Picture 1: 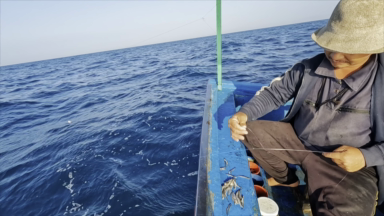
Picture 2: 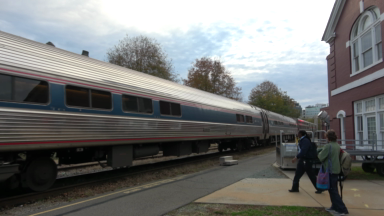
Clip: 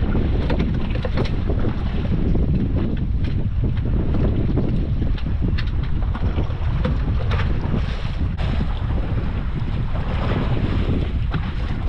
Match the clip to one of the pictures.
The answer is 1